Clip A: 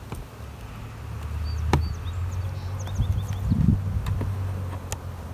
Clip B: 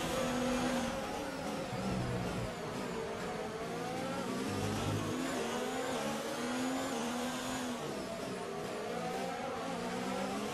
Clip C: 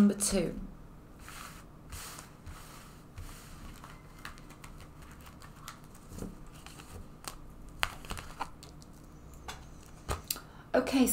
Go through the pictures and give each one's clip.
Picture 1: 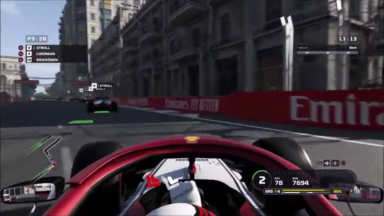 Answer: B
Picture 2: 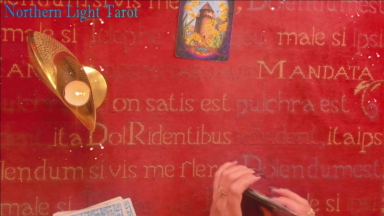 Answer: C